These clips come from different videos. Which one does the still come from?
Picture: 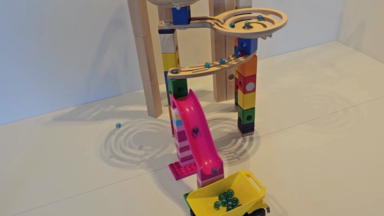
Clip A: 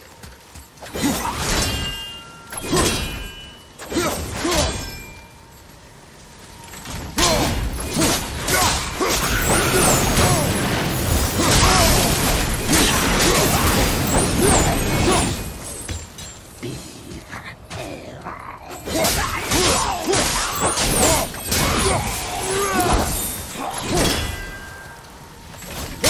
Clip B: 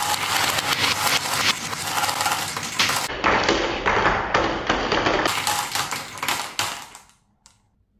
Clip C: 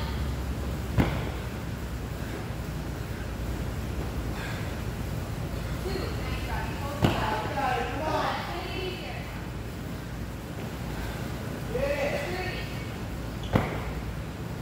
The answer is B